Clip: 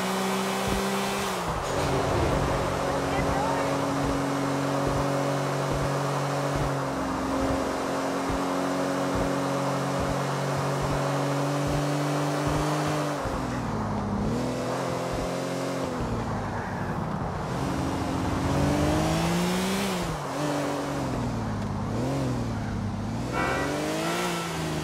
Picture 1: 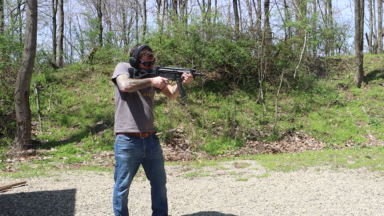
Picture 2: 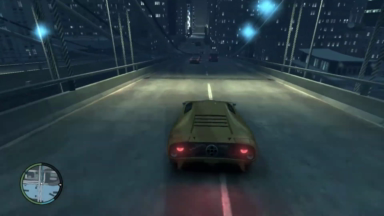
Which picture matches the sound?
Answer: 2